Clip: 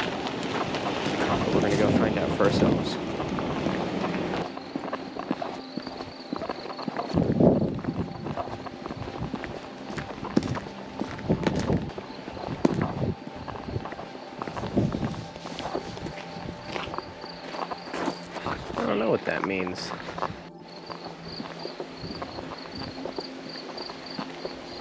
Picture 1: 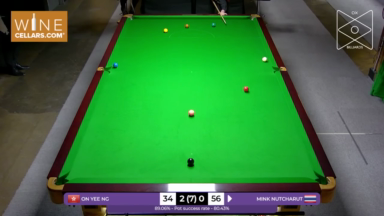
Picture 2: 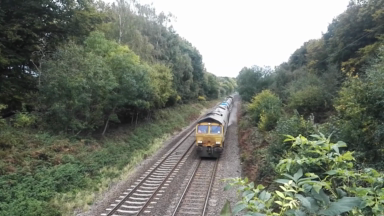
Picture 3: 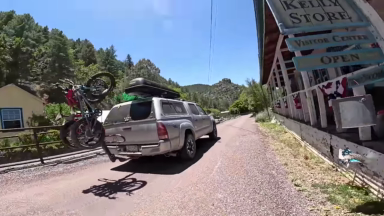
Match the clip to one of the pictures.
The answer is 3